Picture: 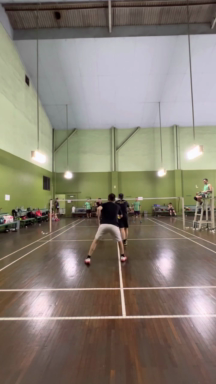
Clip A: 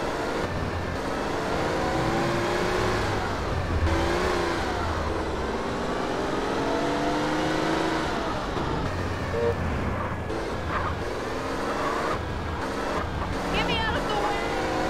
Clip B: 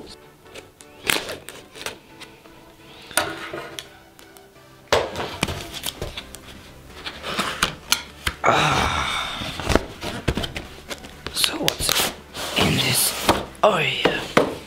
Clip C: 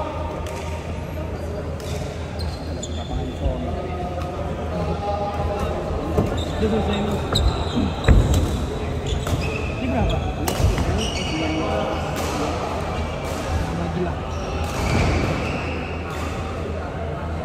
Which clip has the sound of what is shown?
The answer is C